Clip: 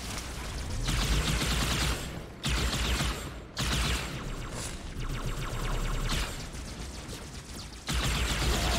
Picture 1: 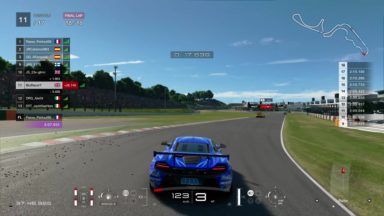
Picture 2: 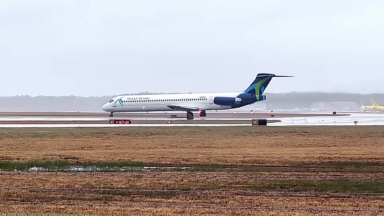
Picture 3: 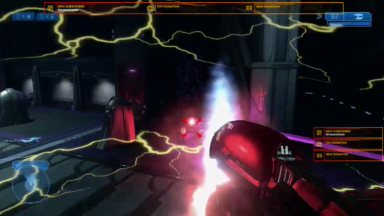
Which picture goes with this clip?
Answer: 3